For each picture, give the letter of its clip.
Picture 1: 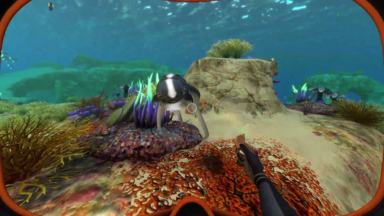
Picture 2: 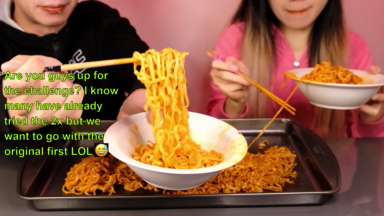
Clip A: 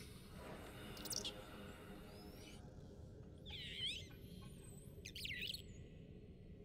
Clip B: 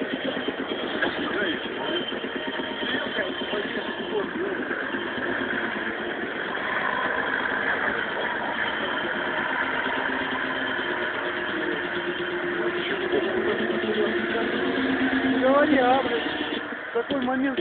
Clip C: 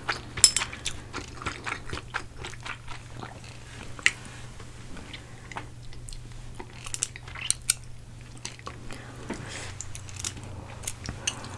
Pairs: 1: A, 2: C